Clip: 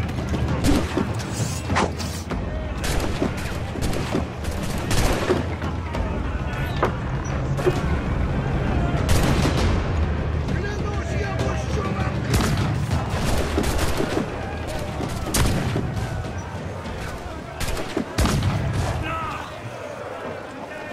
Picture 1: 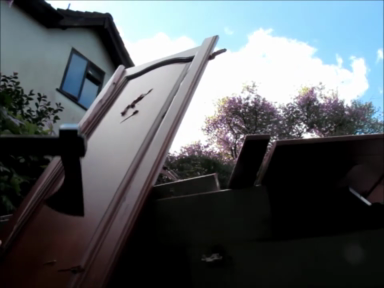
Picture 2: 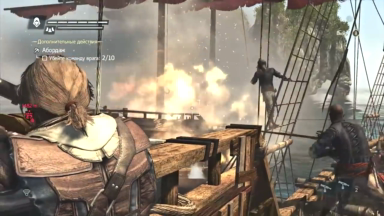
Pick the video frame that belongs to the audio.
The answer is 2